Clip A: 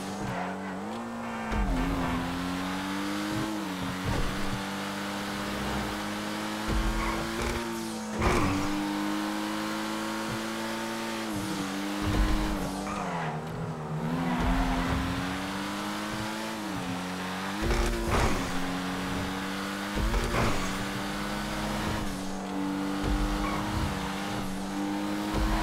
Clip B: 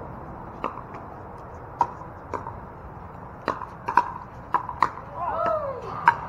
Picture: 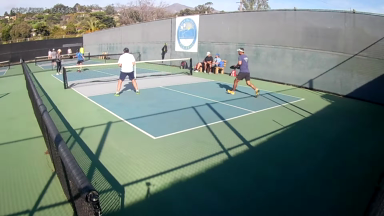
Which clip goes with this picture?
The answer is B